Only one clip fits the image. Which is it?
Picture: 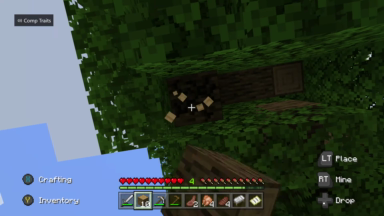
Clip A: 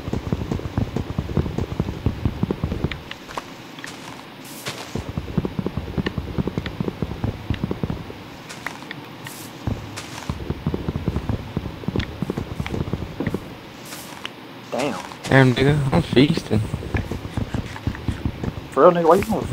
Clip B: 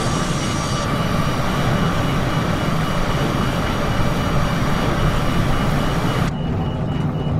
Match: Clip A